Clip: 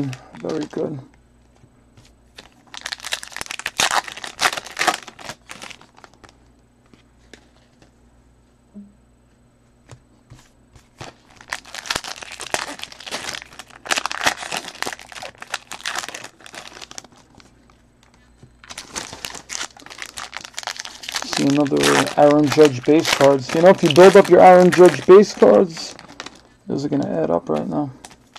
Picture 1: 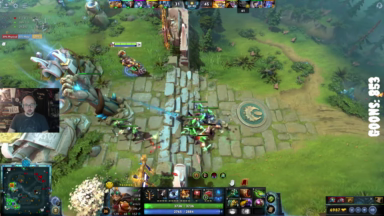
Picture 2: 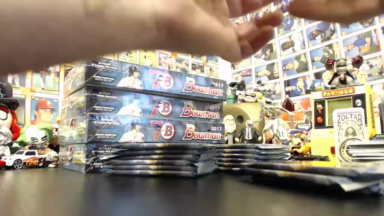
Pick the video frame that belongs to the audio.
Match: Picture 2